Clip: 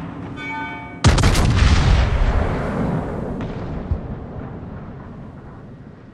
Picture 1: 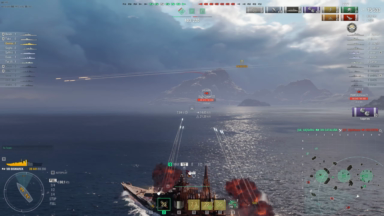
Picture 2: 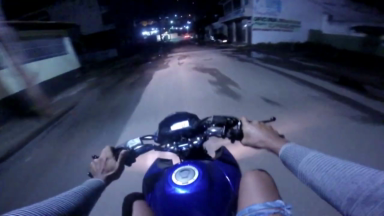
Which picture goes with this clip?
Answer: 1